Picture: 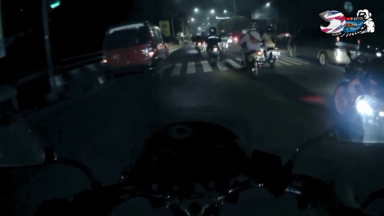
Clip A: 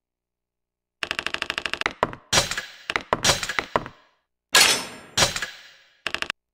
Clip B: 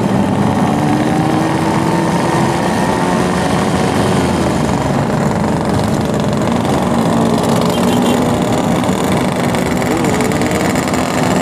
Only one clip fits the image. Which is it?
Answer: B